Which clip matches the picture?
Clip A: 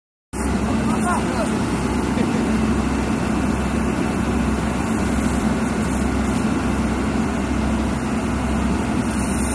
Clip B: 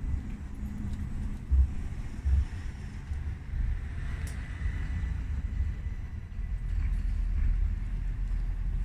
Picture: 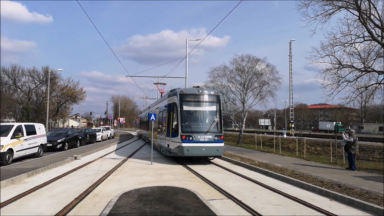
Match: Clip B